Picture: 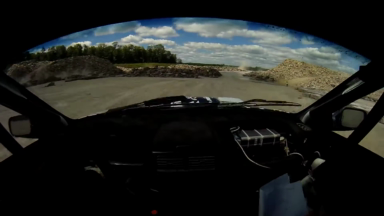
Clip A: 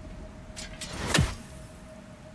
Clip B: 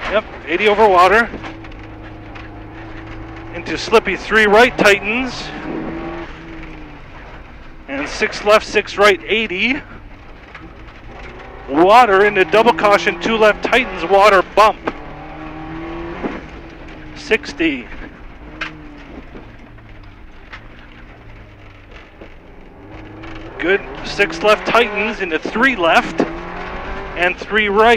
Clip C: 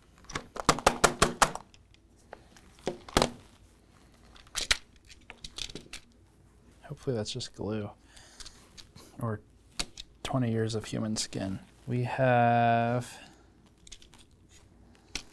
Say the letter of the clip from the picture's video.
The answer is B